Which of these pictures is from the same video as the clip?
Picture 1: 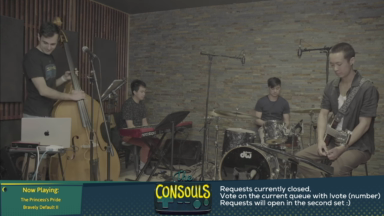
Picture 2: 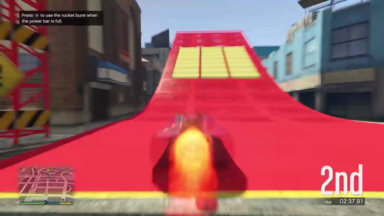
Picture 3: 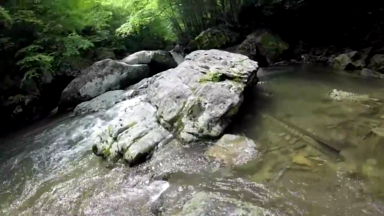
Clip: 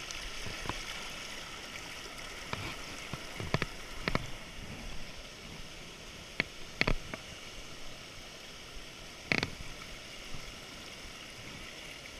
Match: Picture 3